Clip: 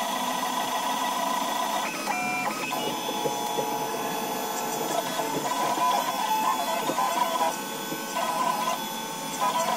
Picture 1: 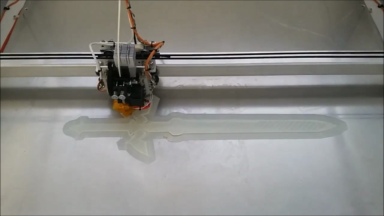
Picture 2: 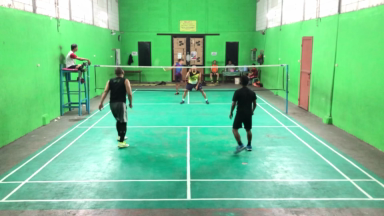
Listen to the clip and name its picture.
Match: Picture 1